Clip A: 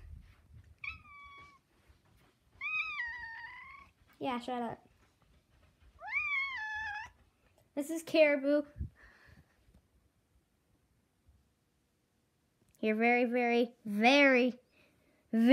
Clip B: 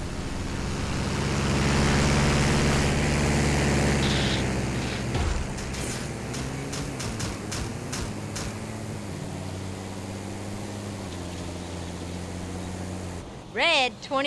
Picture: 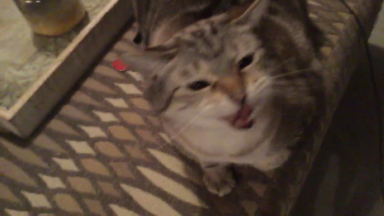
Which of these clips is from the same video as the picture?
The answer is A